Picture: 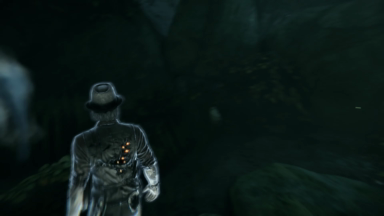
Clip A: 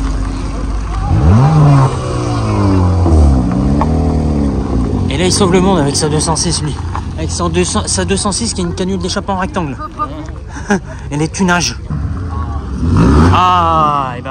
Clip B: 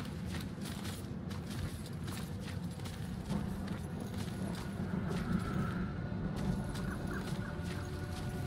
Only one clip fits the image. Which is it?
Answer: B